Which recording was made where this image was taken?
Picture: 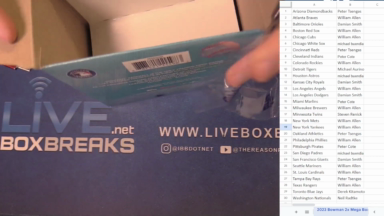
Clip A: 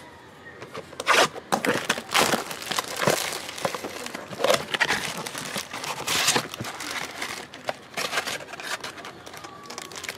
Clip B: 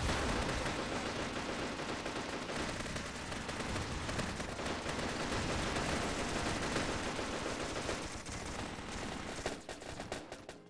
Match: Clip A